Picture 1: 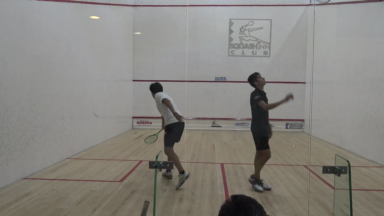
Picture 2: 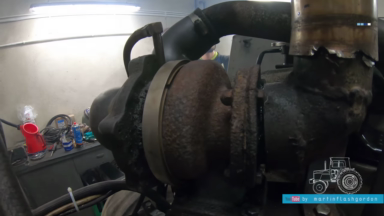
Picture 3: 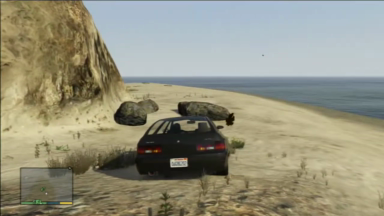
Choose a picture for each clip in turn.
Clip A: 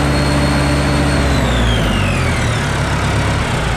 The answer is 2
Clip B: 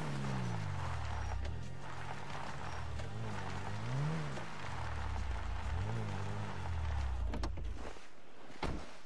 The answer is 3